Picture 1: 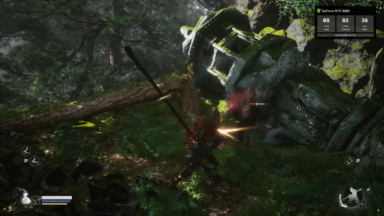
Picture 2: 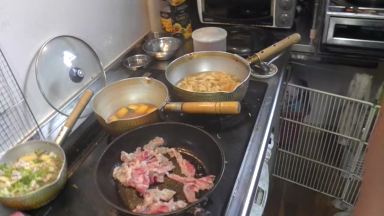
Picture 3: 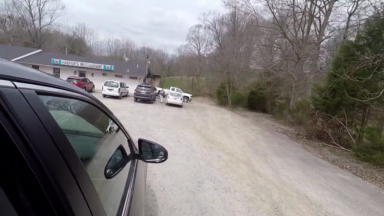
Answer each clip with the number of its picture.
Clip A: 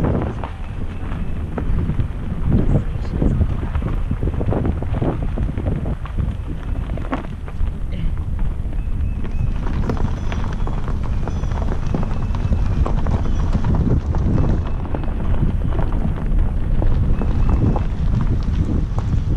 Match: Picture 3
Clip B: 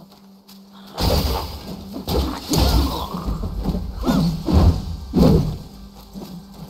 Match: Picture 1